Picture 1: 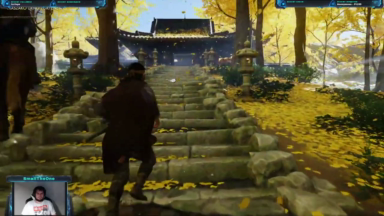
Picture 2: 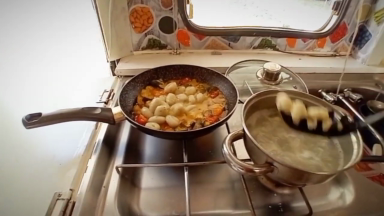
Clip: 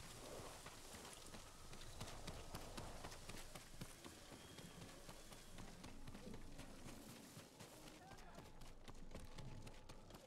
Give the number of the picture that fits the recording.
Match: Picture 1